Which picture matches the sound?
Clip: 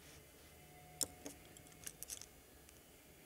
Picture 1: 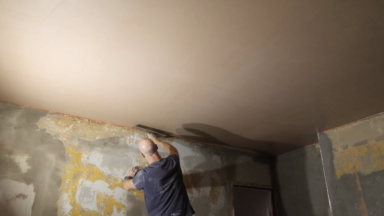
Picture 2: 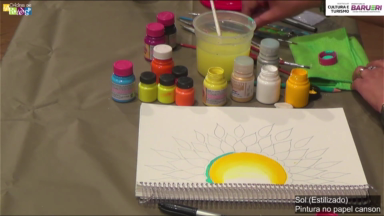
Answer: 2